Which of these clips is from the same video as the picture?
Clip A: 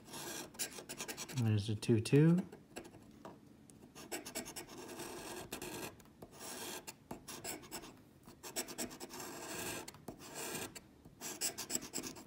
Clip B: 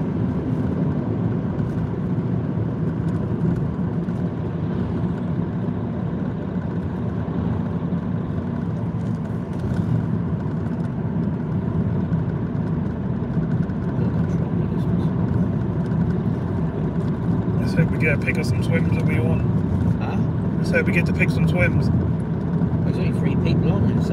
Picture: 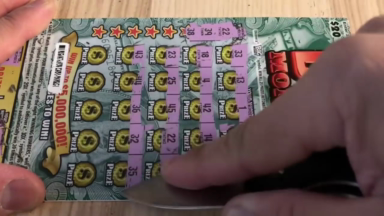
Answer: A